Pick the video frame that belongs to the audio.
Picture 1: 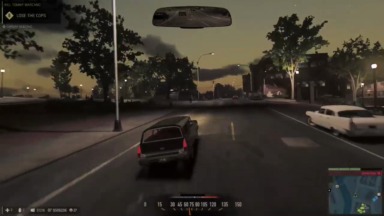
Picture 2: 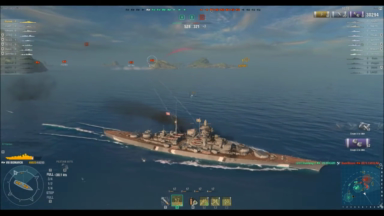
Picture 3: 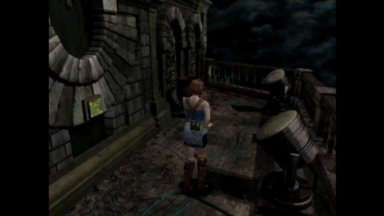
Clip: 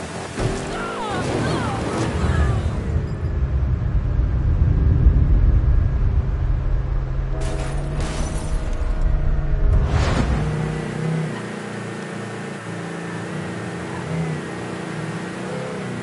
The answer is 1